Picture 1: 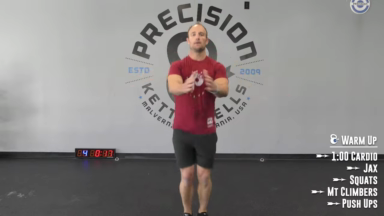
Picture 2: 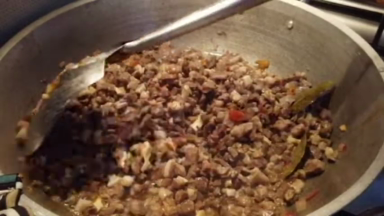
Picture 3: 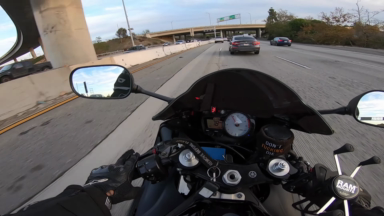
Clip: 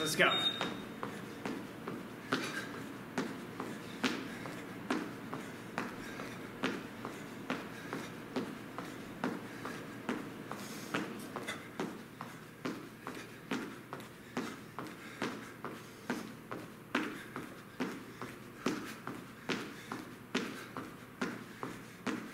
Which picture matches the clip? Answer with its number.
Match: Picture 1